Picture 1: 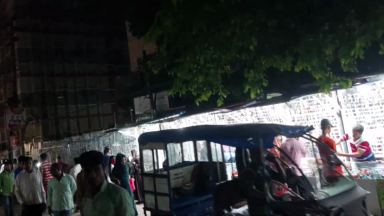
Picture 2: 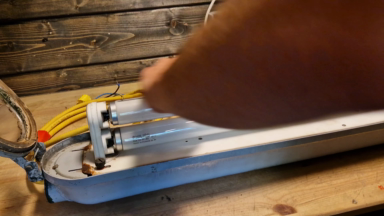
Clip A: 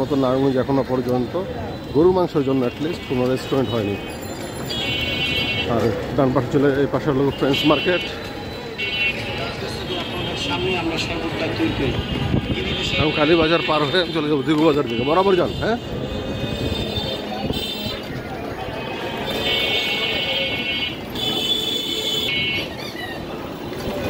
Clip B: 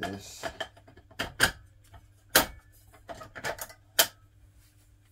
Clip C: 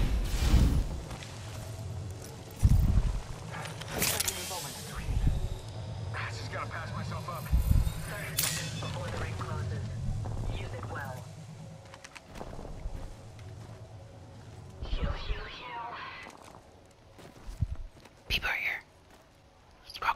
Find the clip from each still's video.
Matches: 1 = A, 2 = B